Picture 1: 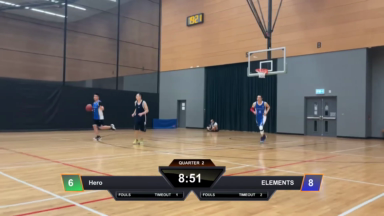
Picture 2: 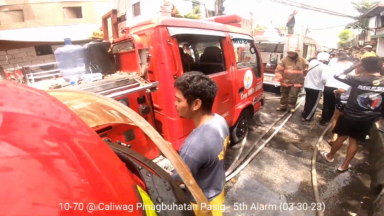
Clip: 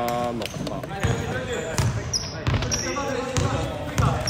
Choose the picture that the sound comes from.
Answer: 1